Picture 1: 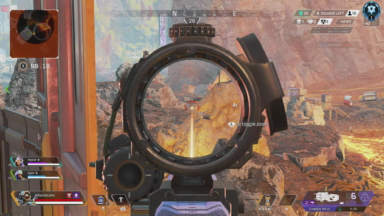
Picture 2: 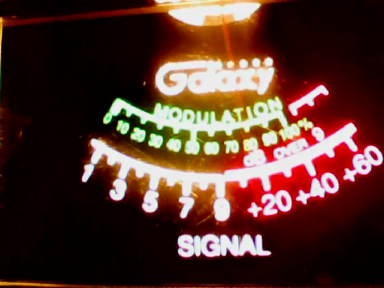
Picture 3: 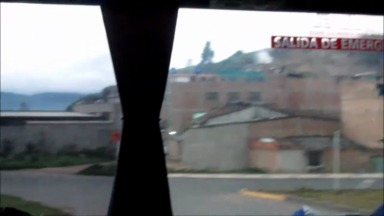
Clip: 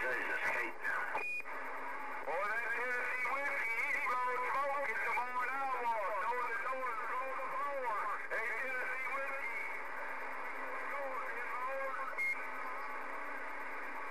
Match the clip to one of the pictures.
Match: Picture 2